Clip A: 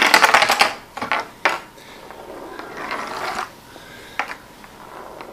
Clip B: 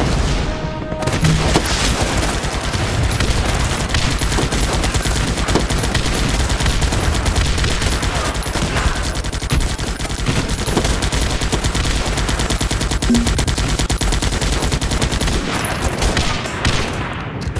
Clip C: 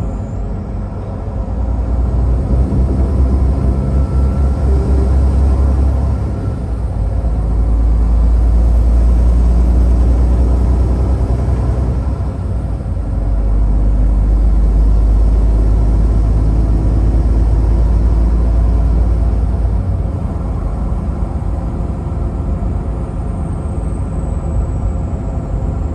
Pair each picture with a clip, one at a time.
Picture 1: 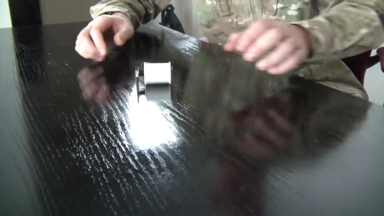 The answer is A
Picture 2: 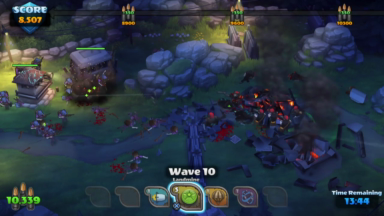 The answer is B